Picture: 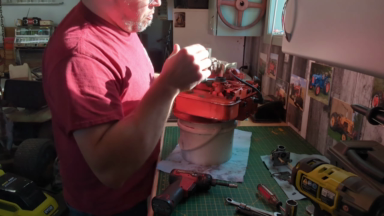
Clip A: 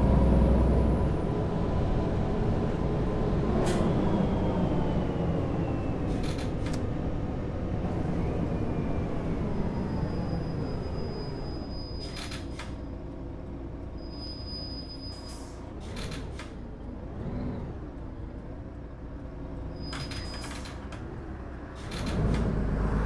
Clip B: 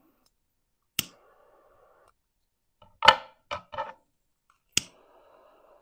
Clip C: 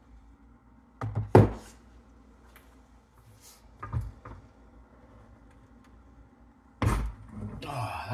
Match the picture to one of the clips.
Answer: C